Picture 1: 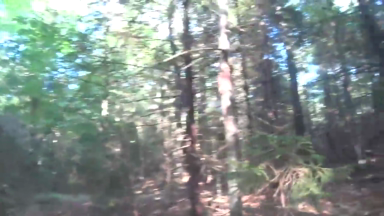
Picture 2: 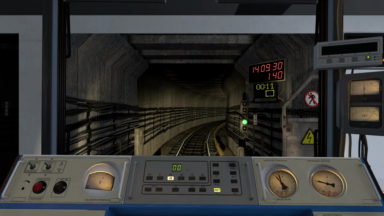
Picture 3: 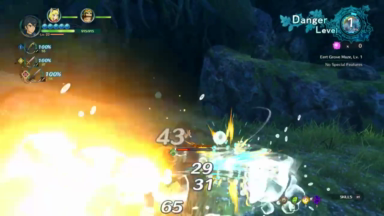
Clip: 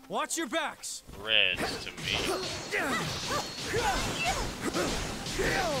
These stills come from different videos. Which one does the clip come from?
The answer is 3